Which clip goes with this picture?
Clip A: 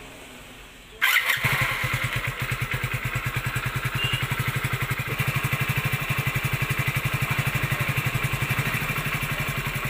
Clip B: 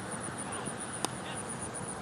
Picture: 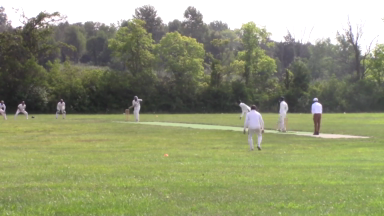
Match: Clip B